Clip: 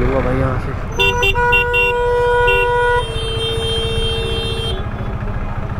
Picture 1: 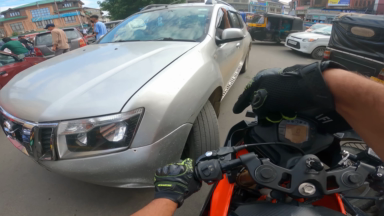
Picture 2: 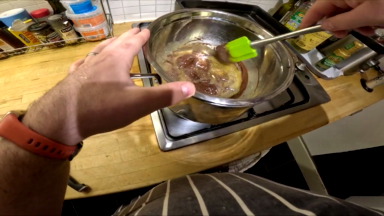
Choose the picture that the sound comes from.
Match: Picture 1